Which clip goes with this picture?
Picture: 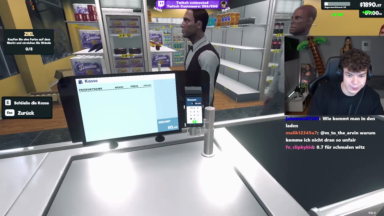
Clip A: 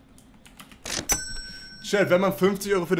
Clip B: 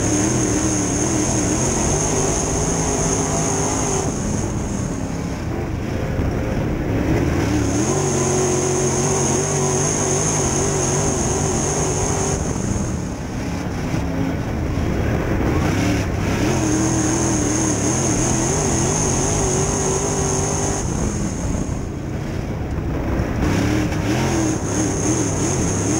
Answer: A